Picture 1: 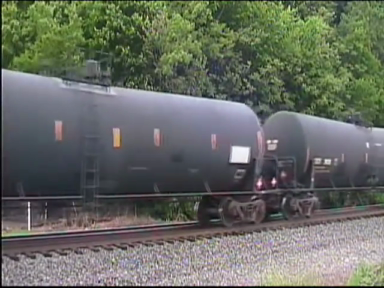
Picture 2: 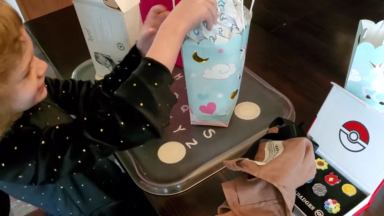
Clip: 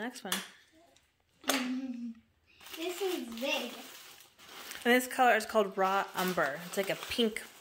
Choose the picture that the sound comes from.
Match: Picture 2